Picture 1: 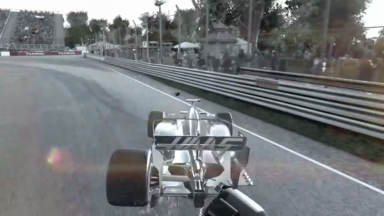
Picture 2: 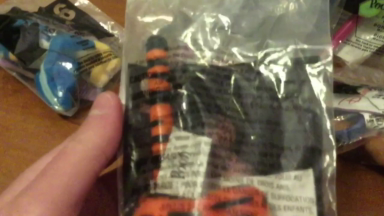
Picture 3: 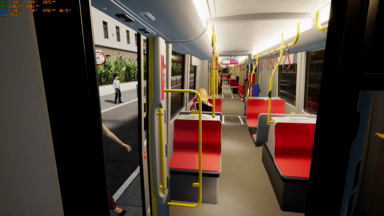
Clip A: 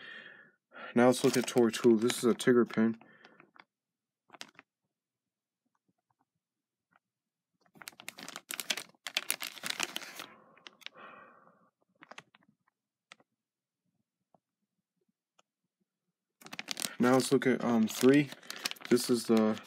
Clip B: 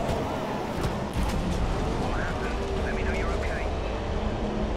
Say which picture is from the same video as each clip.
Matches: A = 2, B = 1